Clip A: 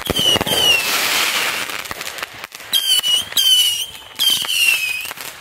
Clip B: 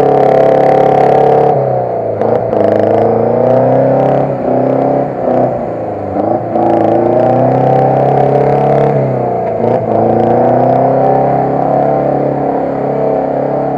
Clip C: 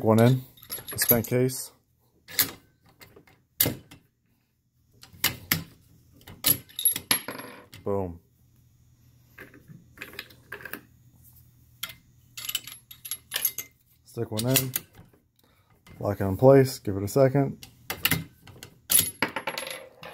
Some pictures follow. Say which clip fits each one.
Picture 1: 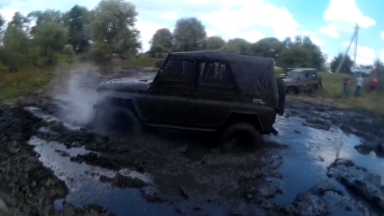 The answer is B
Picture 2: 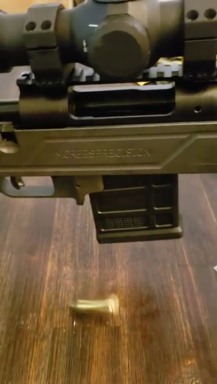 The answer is C